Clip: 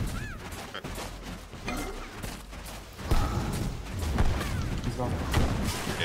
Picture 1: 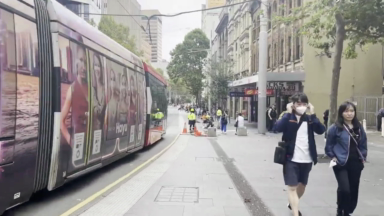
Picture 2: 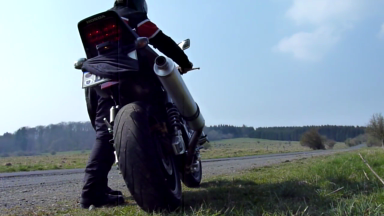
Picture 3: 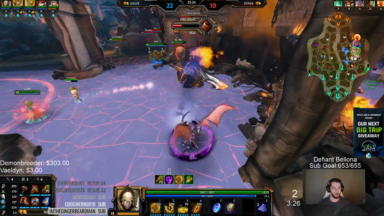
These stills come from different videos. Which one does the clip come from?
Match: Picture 3